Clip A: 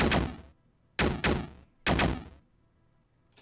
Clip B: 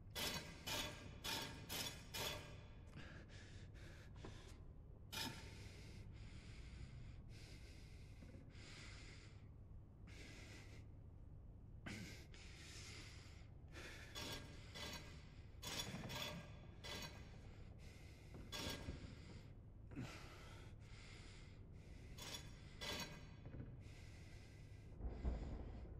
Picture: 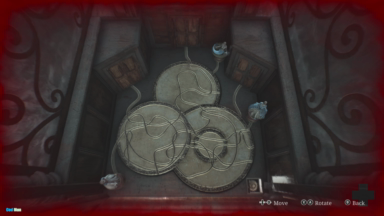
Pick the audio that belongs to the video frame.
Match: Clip B